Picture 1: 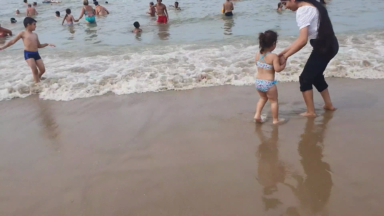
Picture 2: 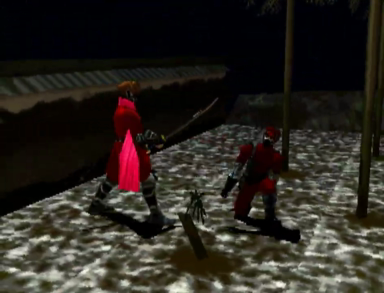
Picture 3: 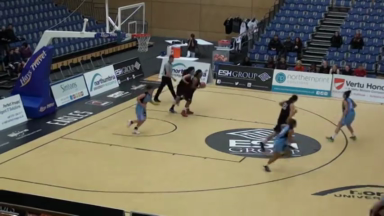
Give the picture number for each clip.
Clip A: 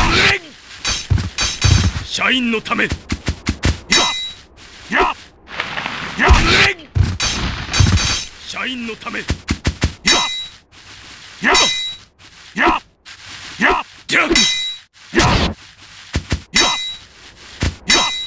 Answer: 2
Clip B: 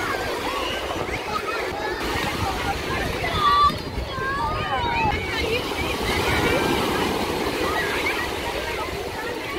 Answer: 1